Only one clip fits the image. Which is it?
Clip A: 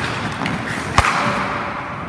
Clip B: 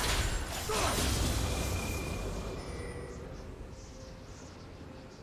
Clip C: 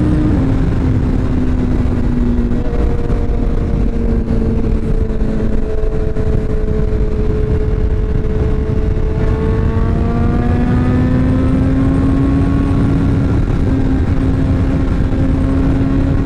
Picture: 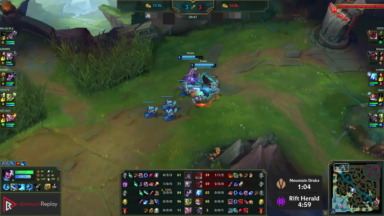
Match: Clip B